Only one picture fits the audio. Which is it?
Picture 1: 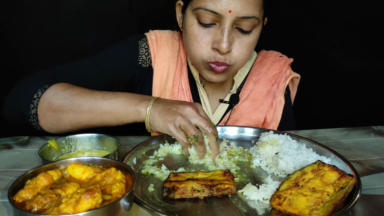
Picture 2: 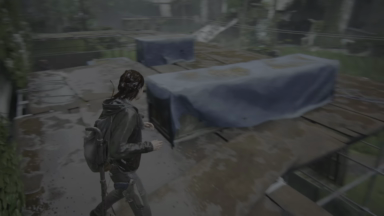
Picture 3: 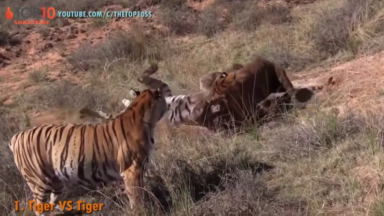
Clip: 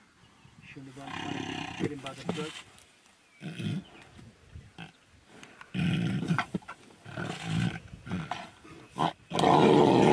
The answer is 3